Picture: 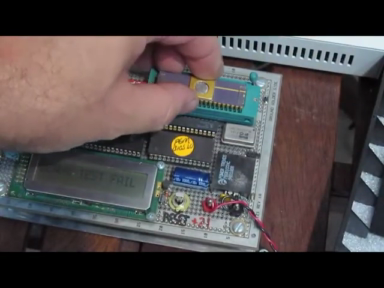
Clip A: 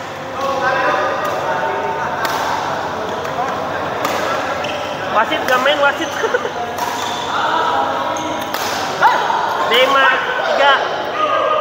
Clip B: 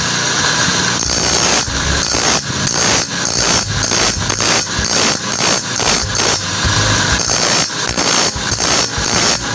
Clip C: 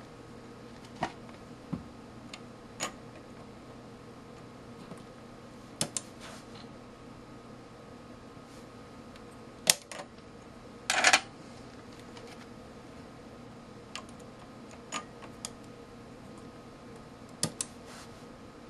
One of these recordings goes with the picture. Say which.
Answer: C